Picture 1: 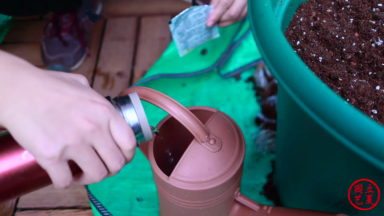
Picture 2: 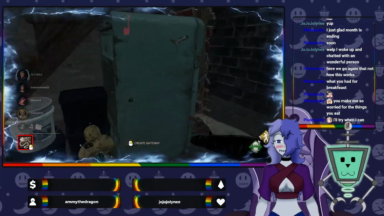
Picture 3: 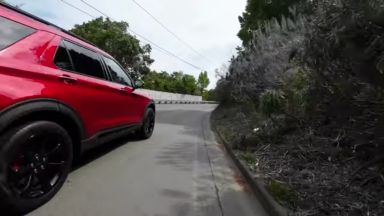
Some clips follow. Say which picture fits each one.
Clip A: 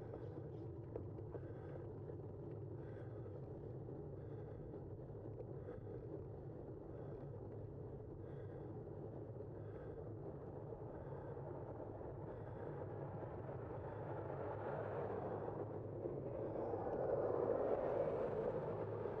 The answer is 3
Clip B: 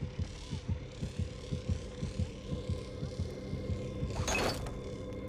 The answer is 2